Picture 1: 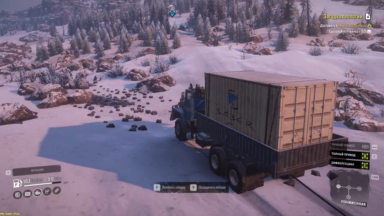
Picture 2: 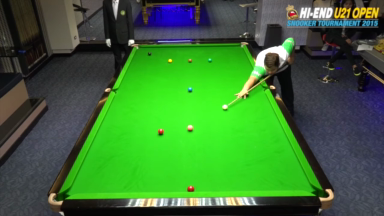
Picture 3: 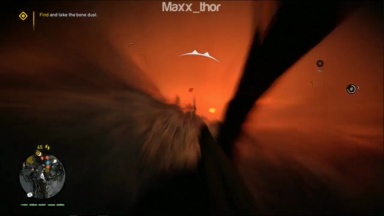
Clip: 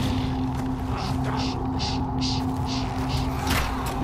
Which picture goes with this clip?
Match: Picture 3